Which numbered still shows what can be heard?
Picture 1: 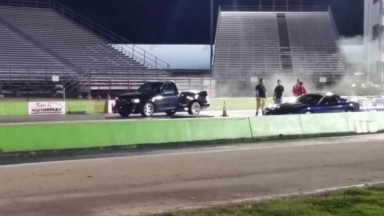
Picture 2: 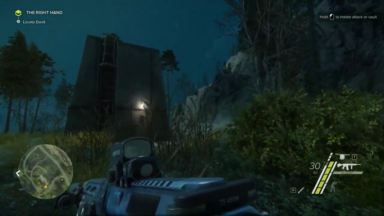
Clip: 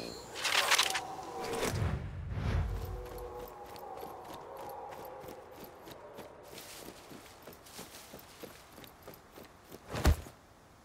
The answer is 2